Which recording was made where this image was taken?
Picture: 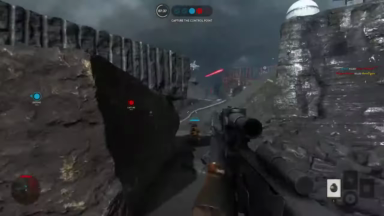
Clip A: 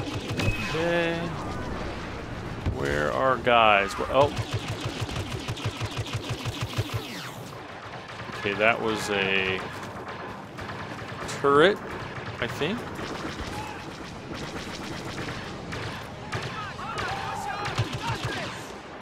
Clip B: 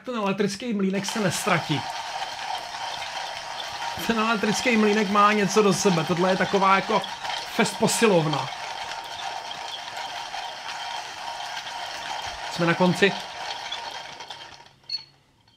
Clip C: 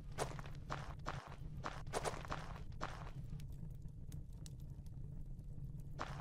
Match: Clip A